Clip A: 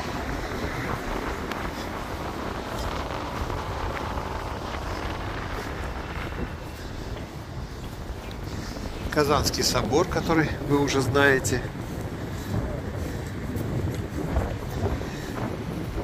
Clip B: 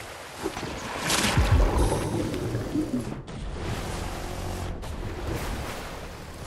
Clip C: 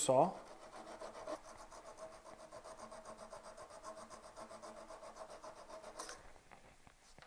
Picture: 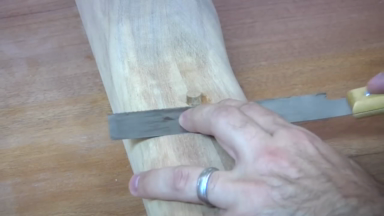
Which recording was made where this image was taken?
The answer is C